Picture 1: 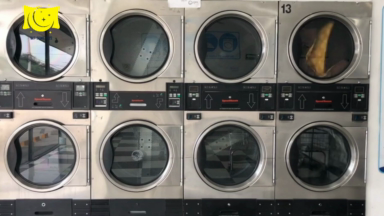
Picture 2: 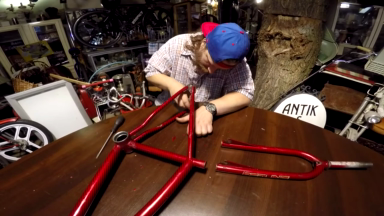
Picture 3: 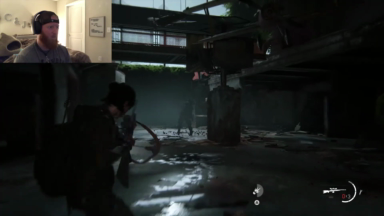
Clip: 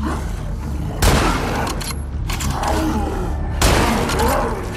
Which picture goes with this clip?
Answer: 3